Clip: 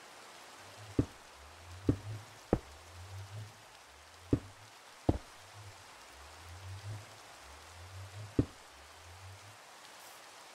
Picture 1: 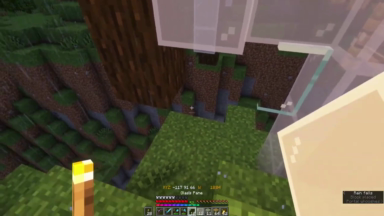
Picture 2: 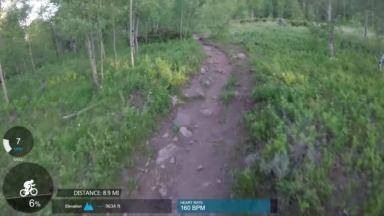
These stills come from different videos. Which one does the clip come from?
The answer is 1